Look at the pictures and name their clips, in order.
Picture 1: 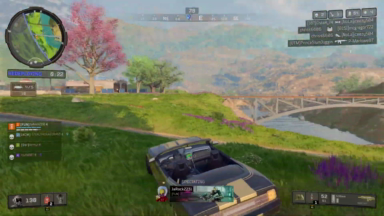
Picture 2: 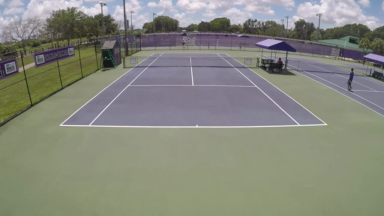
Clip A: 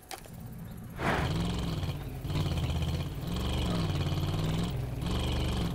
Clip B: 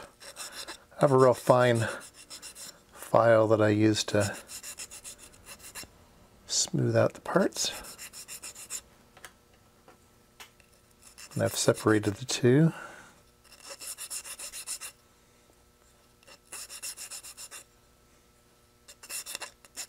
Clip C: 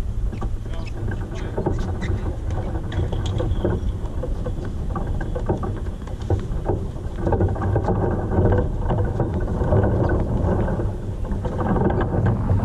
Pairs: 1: A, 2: C